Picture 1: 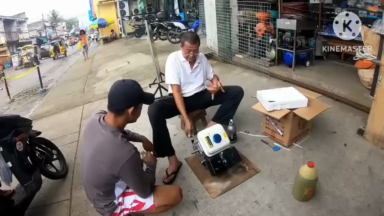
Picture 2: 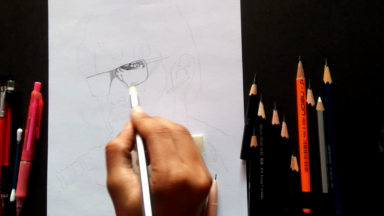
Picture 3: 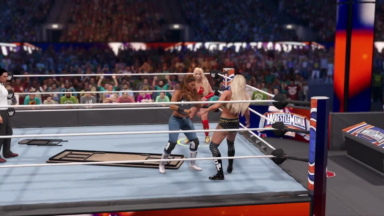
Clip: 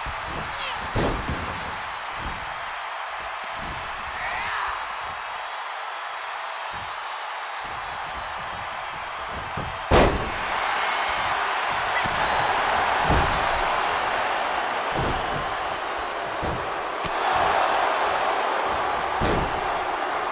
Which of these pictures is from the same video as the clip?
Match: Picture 3